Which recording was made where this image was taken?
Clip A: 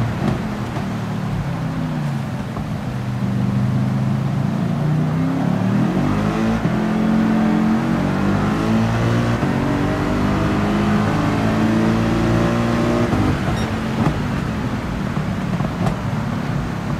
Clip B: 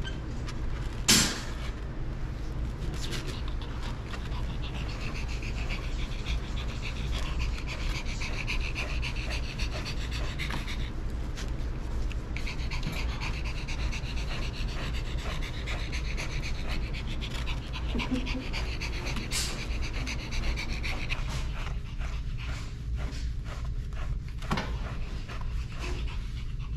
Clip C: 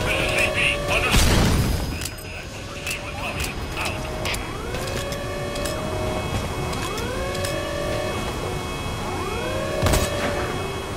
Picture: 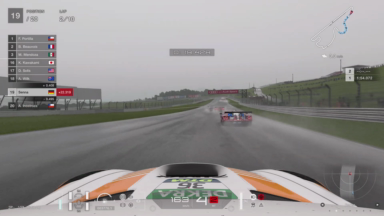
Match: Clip A